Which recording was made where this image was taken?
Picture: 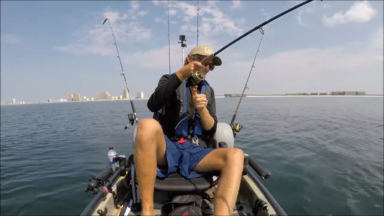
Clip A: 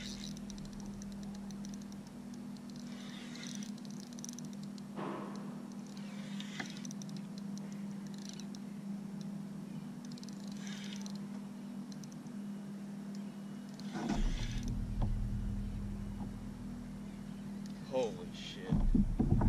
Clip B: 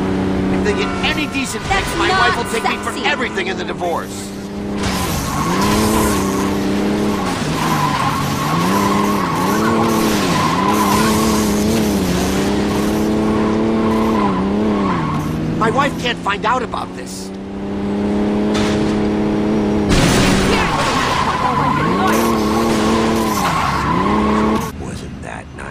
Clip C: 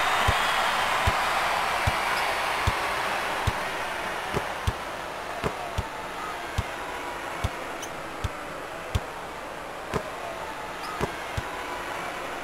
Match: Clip A